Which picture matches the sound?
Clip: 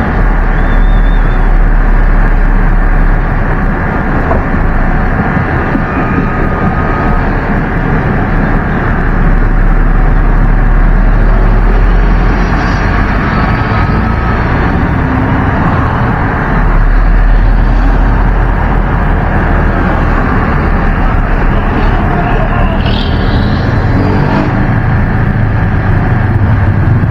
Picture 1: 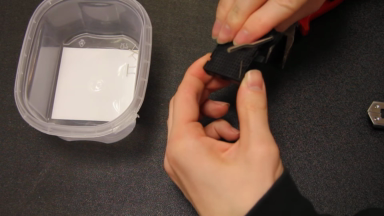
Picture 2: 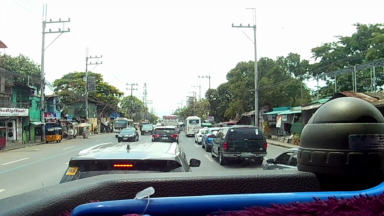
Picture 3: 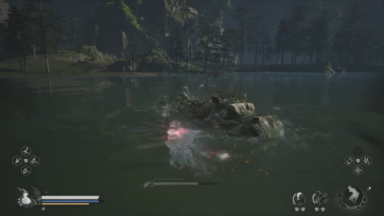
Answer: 2